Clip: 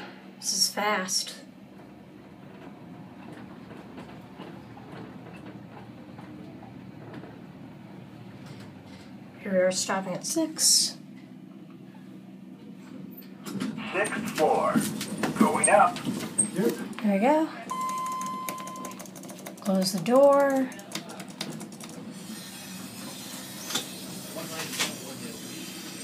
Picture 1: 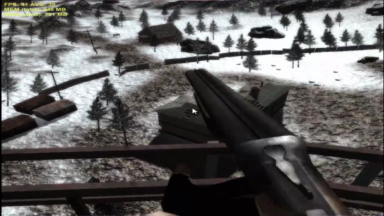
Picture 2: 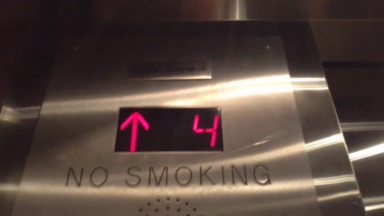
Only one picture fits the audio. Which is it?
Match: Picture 2